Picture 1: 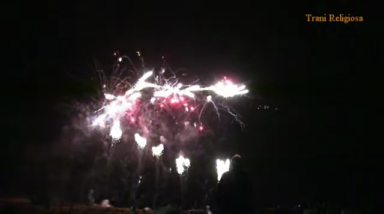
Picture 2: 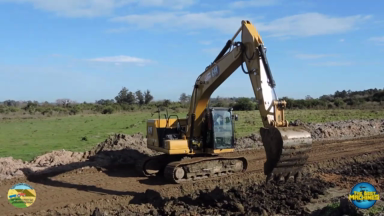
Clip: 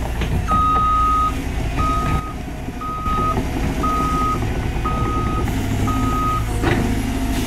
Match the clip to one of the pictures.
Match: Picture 2